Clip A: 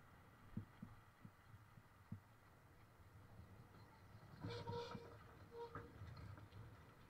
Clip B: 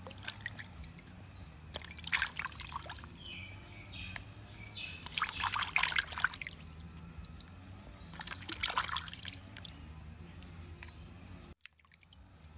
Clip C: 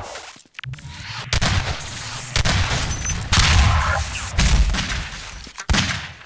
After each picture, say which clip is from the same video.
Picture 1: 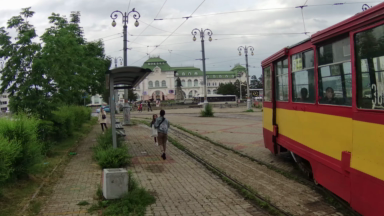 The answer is A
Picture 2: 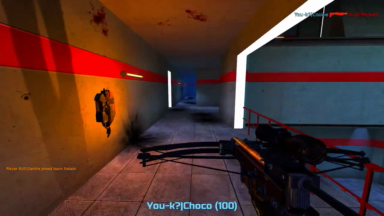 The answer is C